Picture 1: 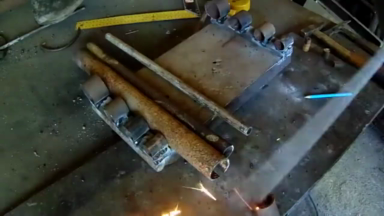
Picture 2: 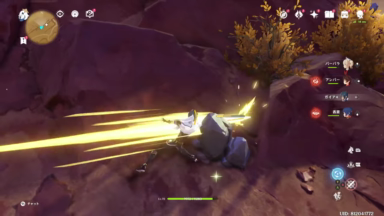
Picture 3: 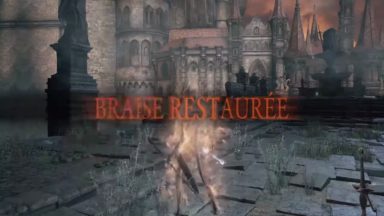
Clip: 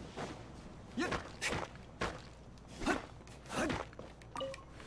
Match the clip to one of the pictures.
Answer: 2